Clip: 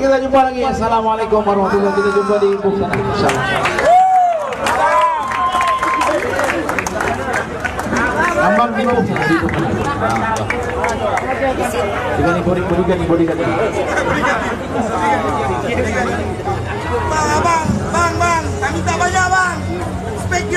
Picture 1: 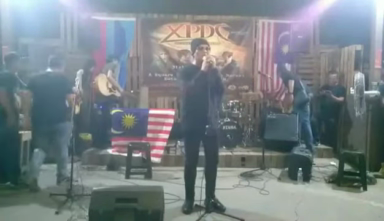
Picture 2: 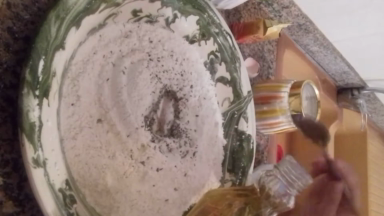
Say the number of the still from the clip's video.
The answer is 1